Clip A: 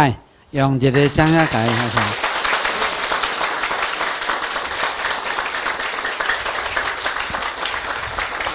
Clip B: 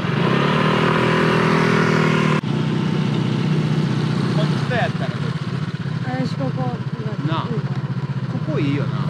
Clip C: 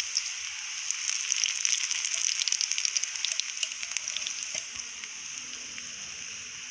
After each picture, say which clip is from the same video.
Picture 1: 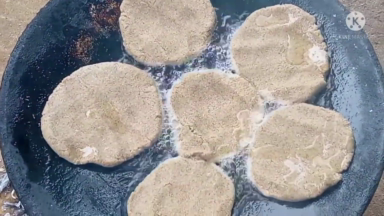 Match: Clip C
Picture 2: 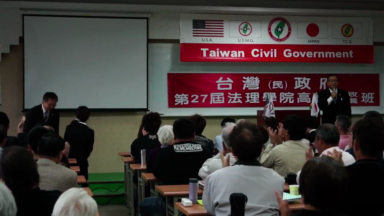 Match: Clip A